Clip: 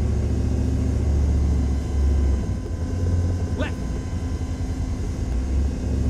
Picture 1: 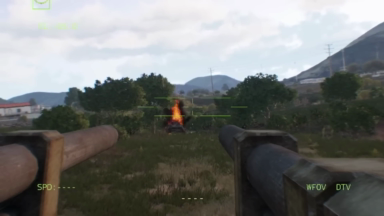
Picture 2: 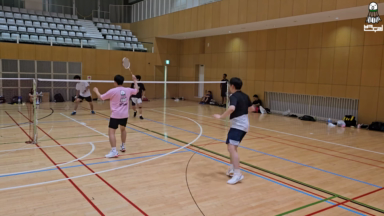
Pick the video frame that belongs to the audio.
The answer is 1